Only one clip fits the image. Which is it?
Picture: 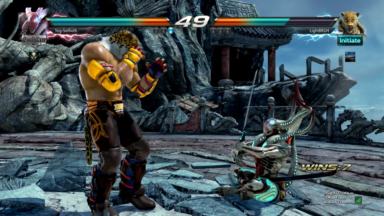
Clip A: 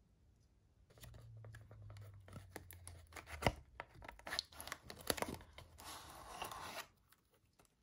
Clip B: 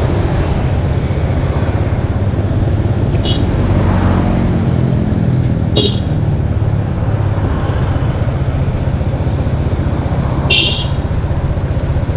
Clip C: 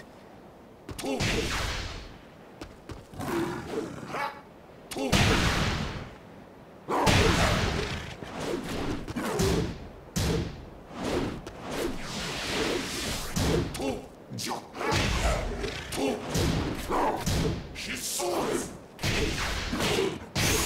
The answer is C